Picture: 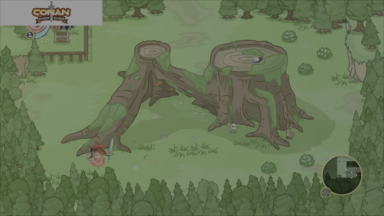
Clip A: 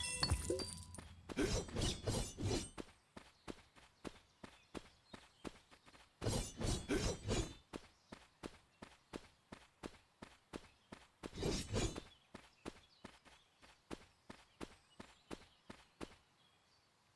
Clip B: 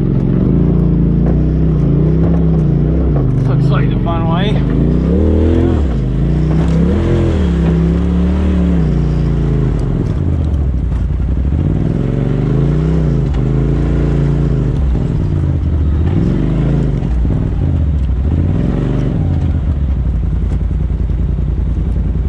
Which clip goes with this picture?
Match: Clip A